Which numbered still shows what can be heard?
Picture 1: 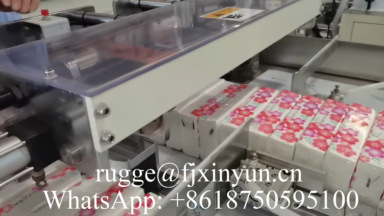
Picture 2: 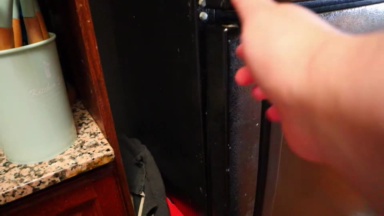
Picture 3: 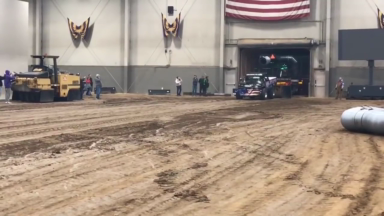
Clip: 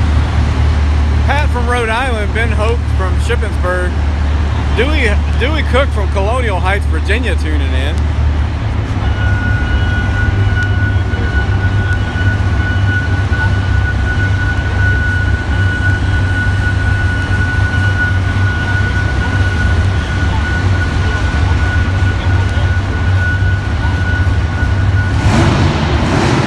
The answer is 3